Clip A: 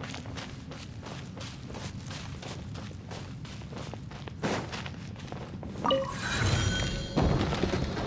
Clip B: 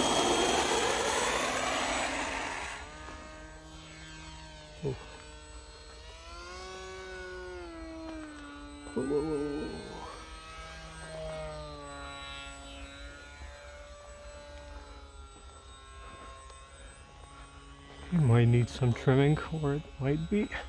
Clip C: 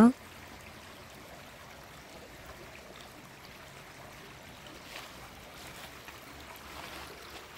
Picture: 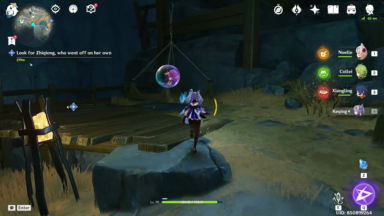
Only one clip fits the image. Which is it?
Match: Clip A